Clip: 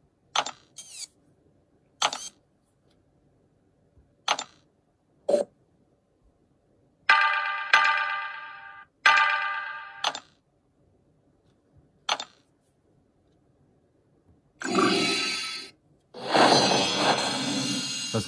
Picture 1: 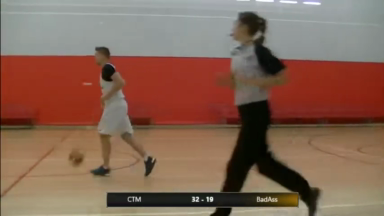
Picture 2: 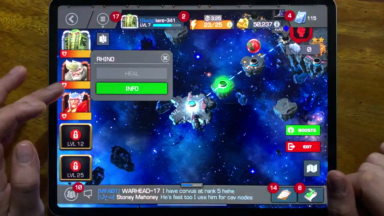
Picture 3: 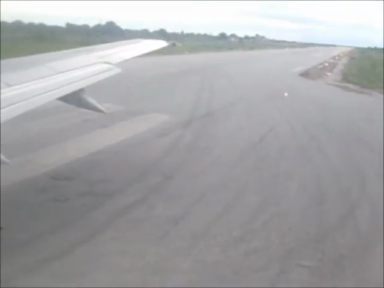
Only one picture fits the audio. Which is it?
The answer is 2